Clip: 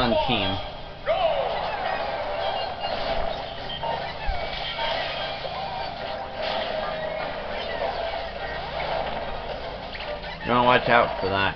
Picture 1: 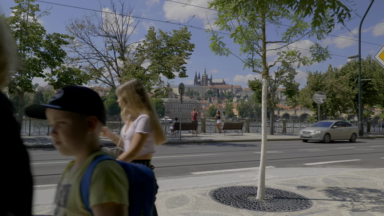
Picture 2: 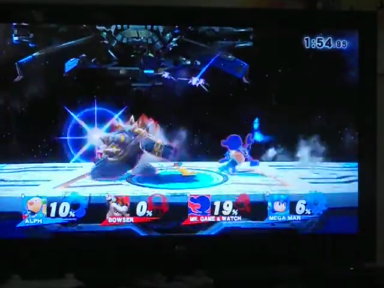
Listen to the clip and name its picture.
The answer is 2